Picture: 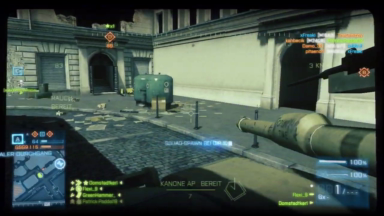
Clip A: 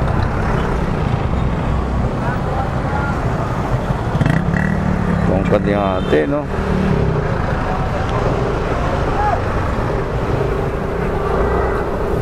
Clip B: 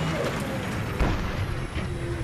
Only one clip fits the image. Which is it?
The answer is B